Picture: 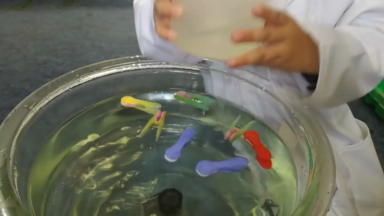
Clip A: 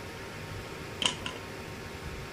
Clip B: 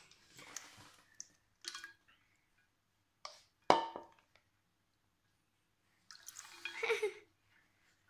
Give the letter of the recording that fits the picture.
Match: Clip B